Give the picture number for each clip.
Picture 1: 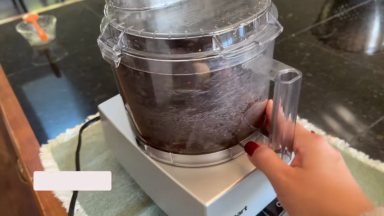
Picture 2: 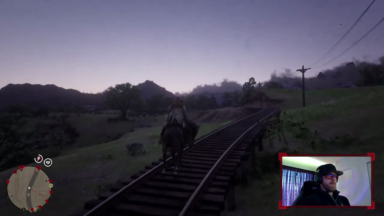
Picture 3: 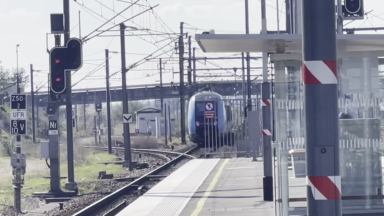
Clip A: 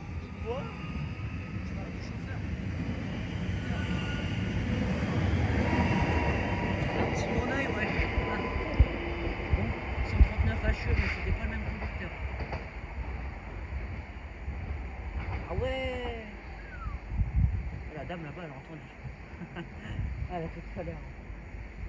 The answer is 3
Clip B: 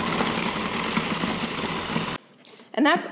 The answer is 1